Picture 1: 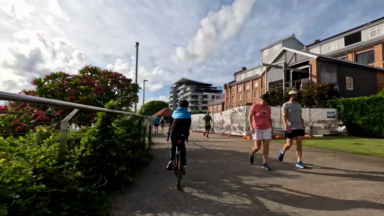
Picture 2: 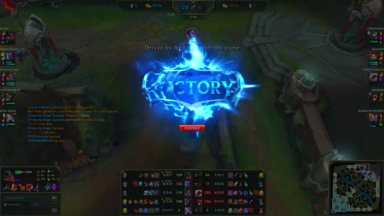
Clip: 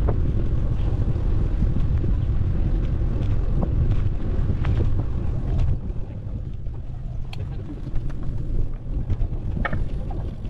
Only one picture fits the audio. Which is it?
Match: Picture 1